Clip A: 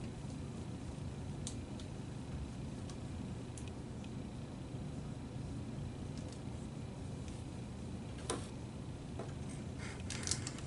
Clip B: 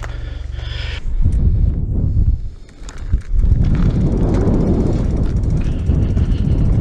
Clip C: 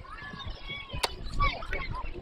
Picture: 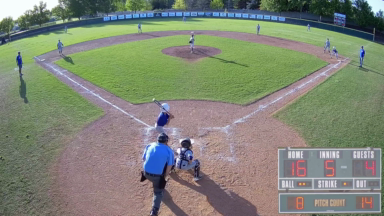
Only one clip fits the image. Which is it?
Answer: C